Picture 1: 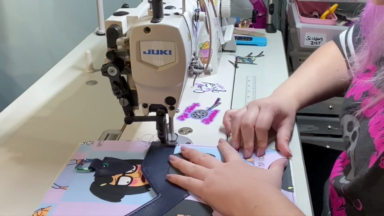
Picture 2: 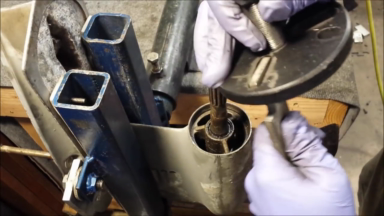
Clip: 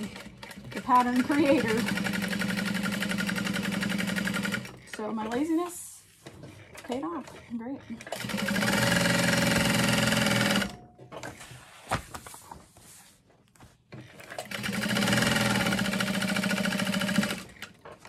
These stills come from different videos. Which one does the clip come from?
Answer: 1